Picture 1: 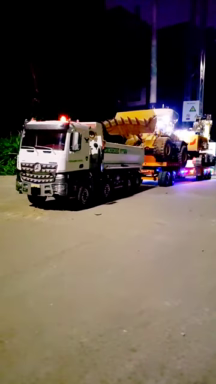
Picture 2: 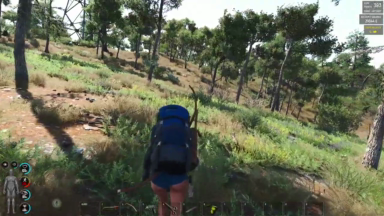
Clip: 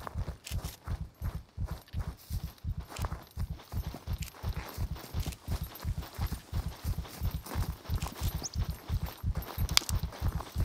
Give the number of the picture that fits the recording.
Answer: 2